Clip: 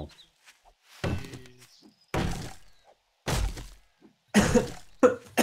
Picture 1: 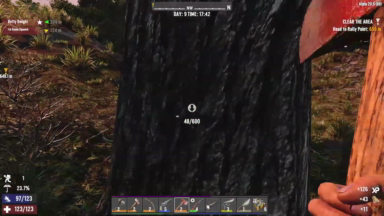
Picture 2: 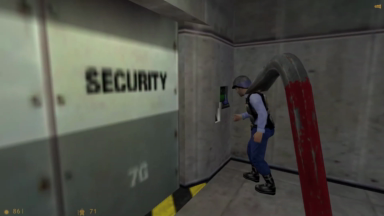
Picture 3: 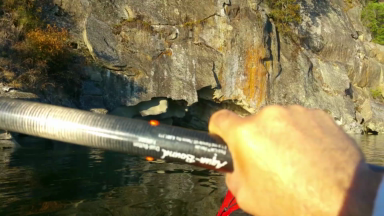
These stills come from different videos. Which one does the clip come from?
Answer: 1